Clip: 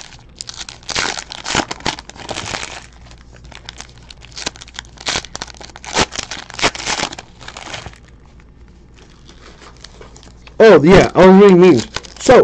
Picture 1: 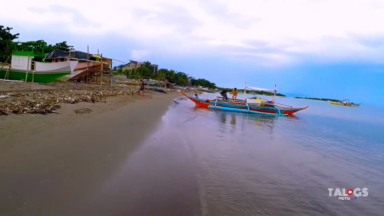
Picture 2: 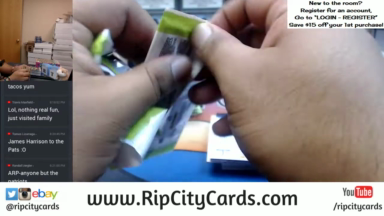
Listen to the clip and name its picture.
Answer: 2